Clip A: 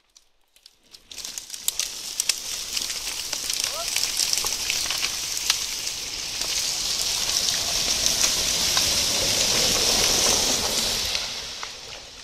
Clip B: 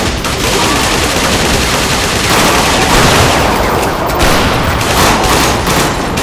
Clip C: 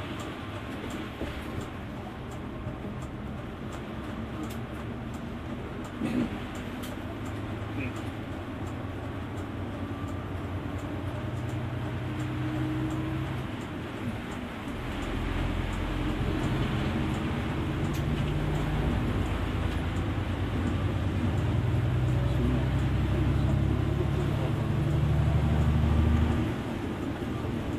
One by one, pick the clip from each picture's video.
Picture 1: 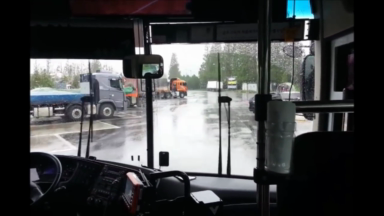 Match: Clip C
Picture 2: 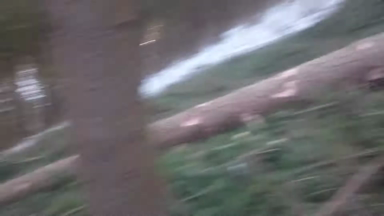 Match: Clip A